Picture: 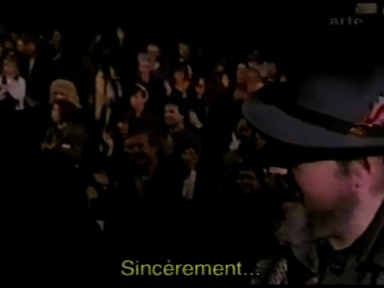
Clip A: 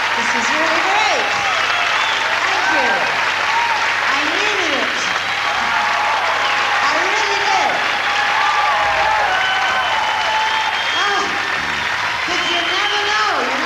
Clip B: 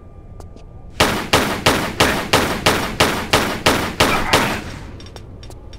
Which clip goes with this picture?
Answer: A